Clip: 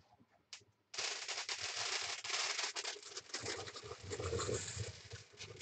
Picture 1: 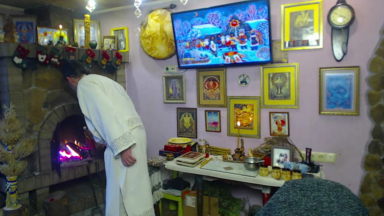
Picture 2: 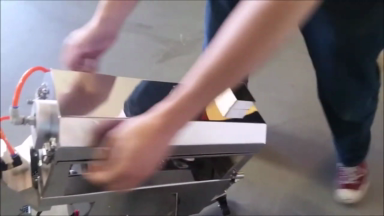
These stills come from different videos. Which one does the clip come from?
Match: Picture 1